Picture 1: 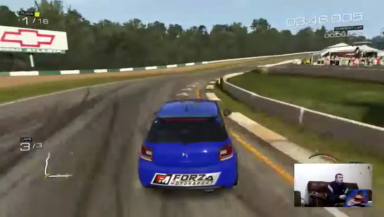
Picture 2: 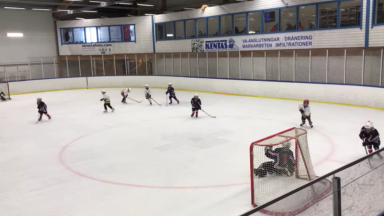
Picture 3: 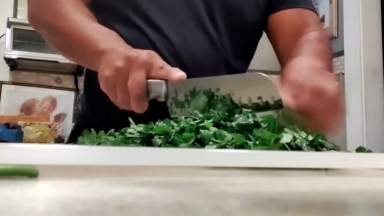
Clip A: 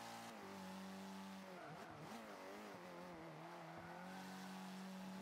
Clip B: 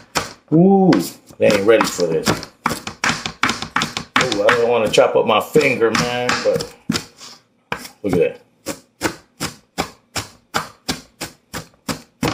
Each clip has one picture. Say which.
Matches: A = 1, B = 3